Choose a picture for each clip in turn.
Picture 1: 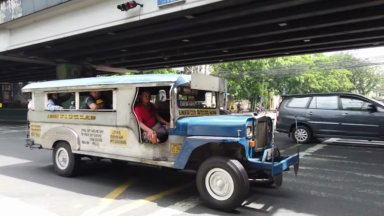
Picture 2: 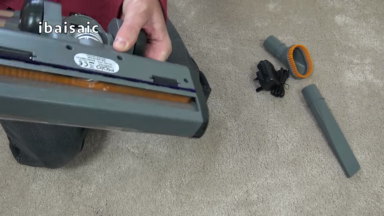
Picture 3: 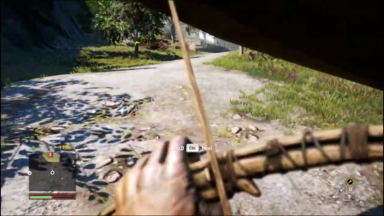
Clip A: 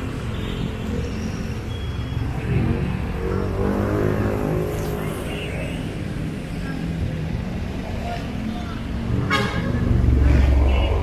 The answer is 1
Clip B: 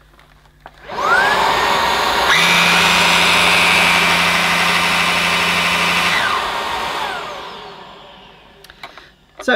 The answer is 2